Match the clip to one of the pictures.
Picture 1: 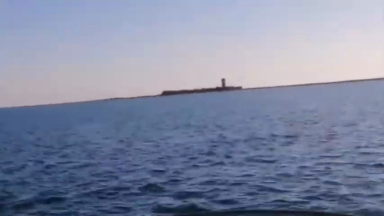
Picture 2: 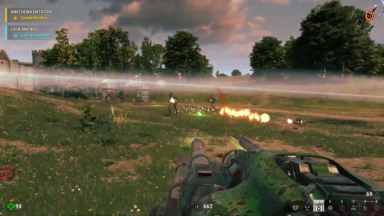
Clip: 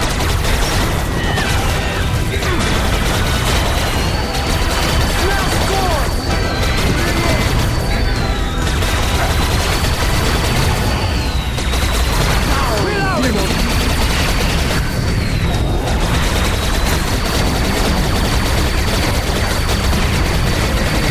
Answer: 2